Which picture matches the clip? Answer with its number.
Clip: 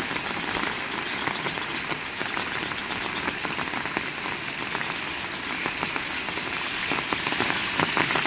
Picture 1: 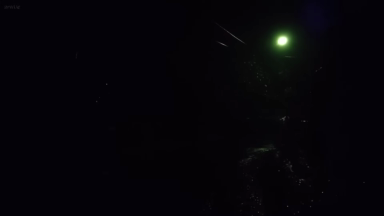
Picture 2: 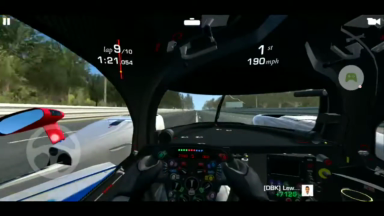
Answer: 1